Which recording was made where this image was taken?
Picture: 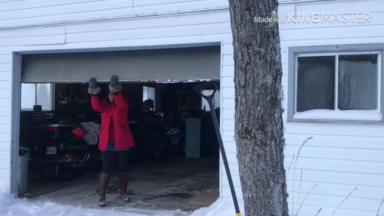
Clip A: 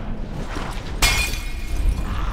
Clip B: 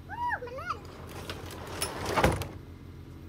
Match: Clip B